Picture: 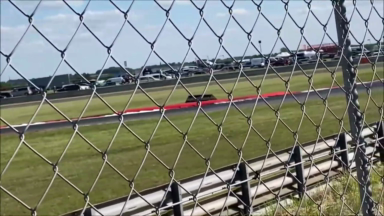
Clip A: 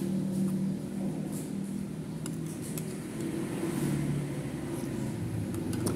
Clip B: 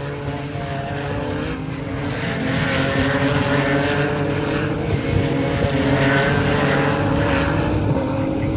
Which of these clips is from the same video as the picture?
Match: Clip B